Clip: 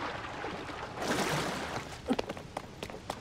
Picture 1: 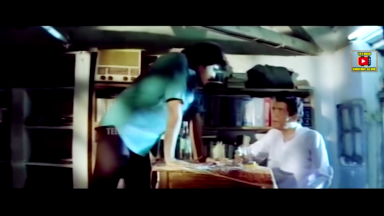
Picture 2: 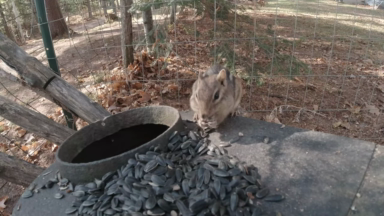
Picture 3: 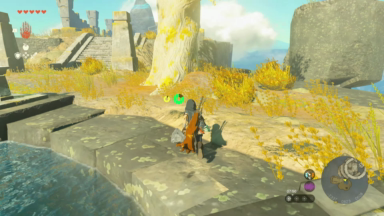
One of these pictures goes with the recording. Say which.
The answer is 3